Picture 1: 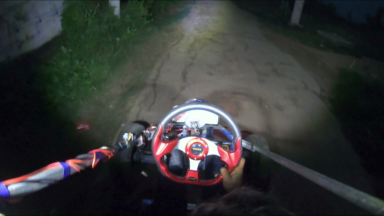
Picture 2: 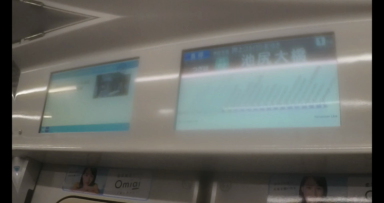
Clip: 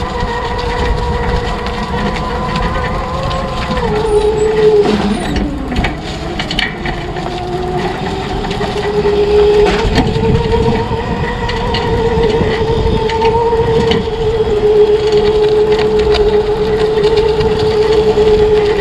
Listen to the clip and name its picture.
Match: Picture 1